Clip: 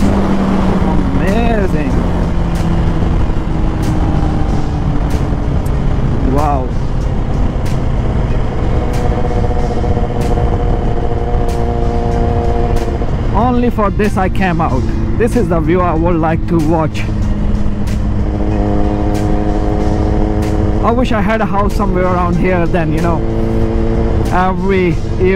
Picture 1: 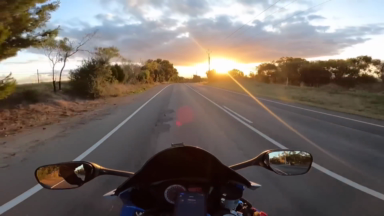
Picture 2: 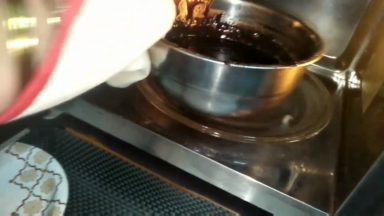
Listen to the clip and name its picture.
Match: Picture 1